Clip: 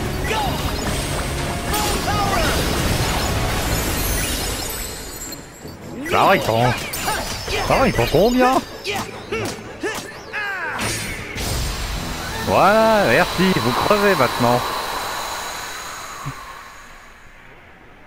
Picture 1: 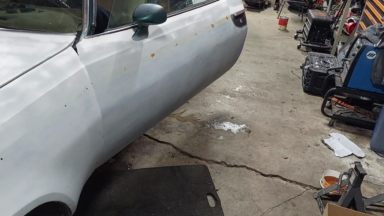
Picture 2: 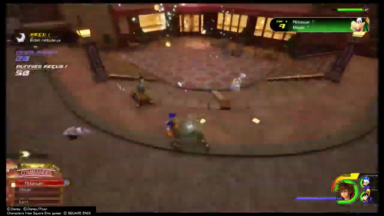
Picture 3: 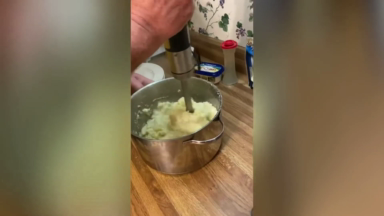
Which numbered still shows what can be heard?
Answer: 2